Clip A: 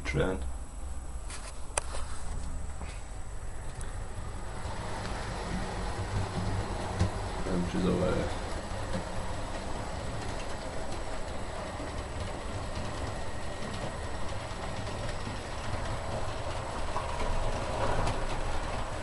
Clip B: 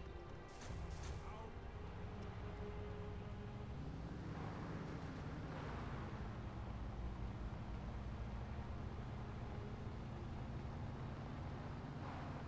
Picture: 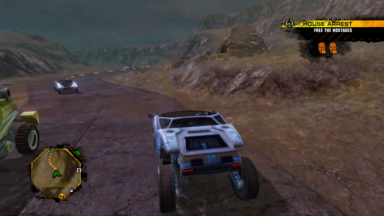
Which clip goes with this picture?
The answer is B